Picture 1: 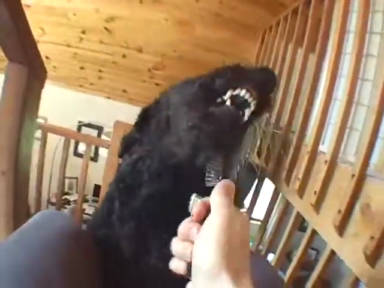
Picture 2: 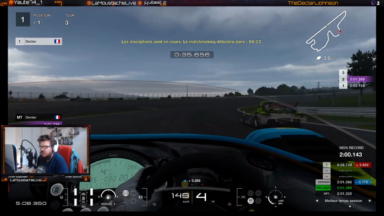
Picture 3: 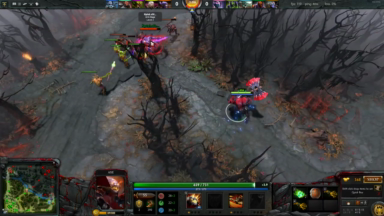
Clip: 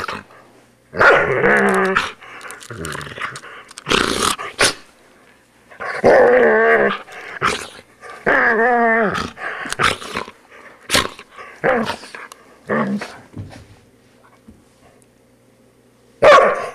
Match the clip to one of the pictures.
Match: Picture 1